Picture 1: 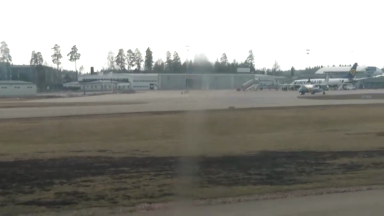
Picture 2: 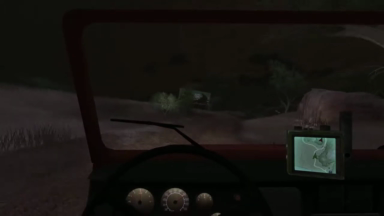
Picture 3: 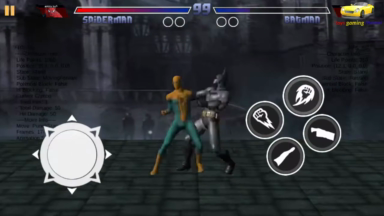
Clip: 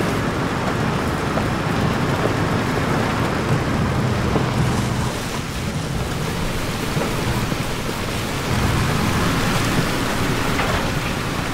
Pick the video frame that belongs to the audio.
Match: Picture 2